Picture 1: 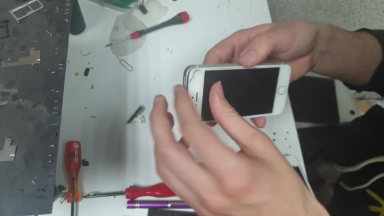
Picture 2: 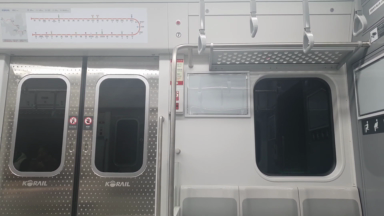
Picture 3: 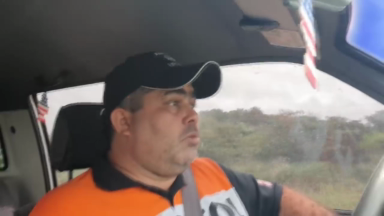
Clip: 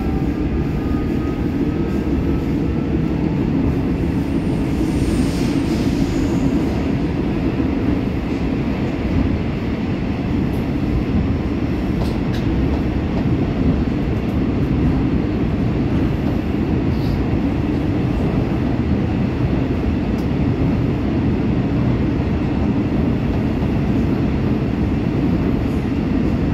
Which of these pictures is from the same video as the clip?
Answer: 2